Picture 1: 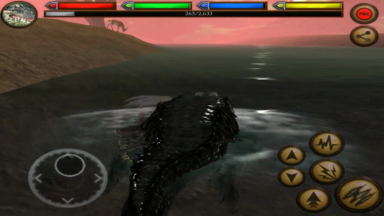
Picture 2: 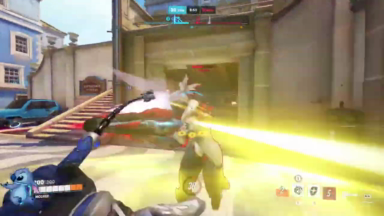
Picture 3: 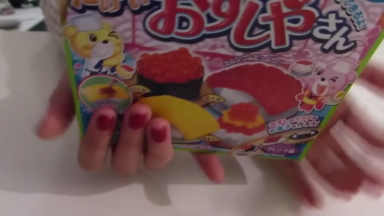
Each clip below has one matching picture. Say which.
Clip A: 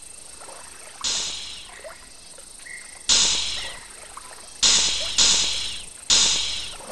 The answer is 1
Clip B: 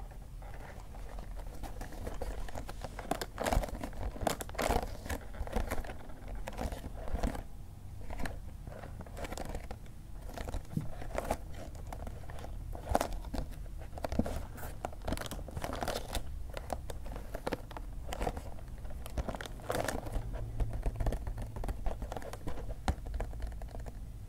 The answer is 3